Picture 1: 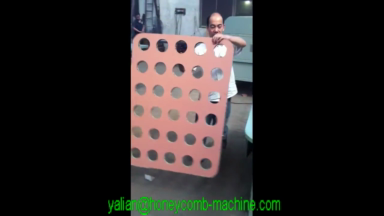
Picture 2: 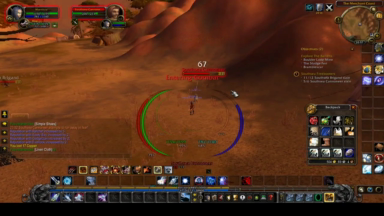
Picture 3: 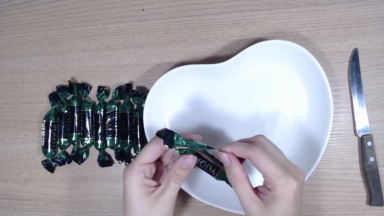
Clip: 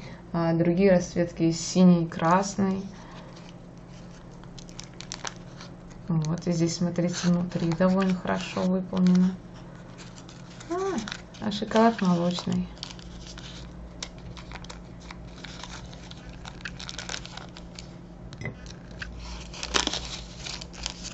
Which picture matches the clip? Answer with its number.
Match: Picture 3